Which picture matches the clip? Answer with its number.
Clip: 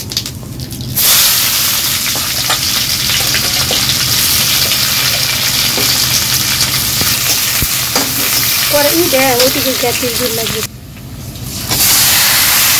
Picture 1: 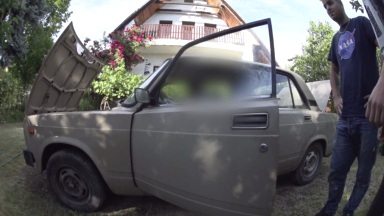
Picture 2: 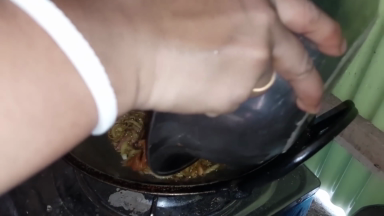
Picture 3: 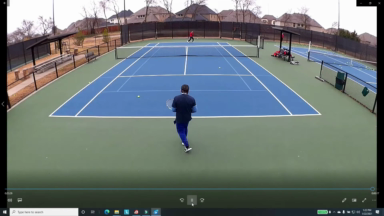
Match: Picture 2